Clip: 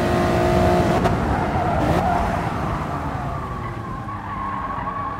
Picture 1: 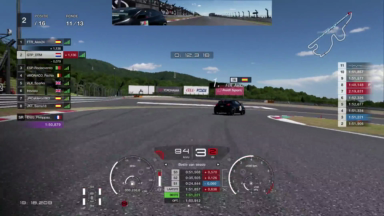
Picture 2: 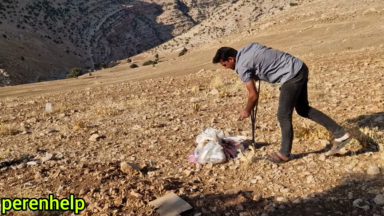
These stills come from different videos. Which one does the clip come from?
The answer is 1